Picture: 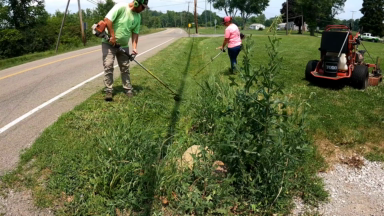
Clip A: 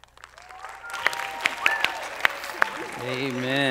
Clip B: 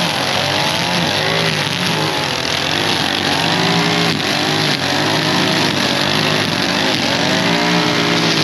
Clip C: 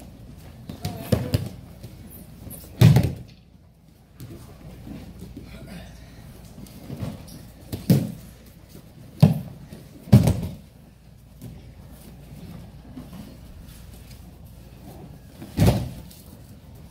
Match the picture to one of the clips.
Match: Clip B